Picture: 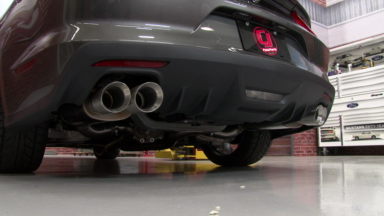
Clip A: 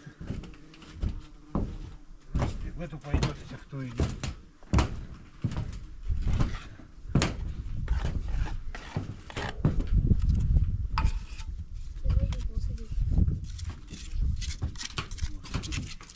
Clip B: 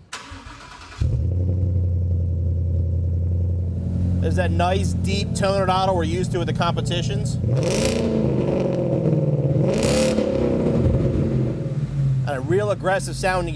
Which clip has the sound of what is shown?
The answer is B